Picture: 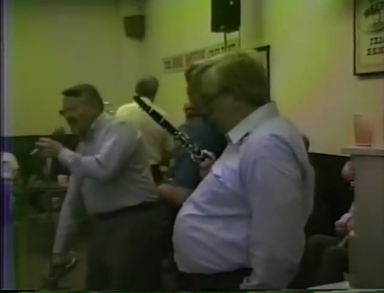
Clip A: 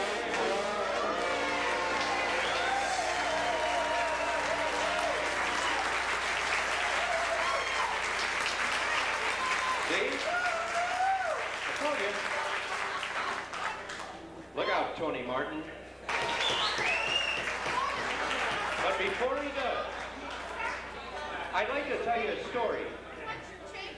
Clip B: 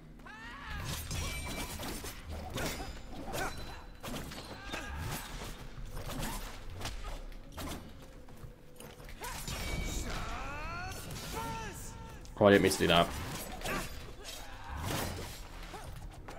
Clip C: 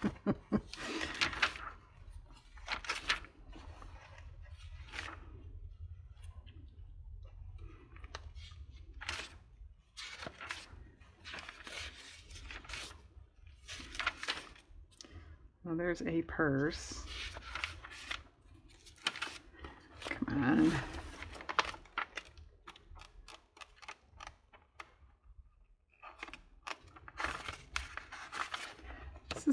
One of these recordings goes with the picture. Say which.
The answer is A